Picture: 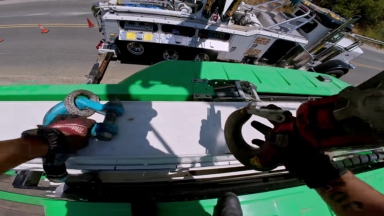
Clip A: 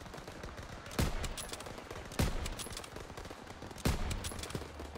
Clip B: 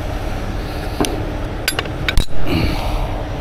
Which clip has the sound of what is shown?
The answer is B